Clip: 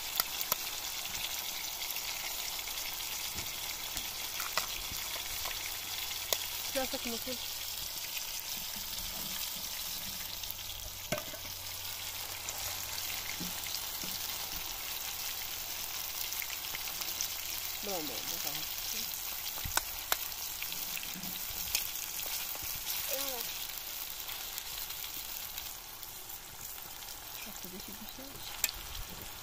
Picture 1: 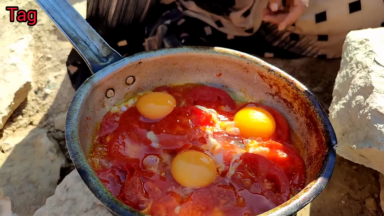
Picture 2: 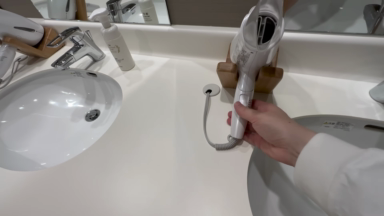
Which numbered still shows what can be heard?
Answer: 1